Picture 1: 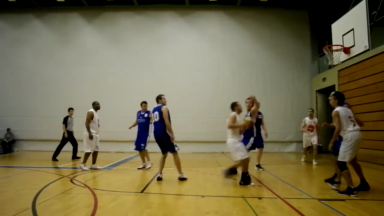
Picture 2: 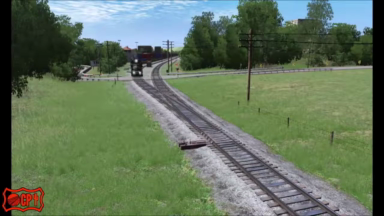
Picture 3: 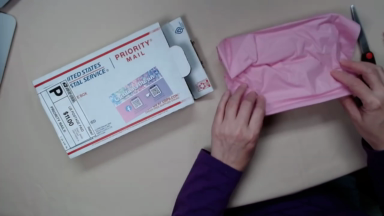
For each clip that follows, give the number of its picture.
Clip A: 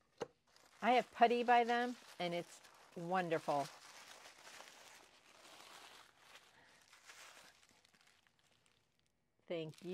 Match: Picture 3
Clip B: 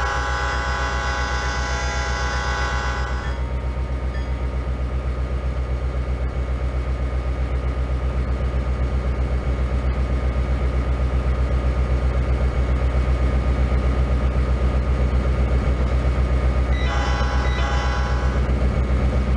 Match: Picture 2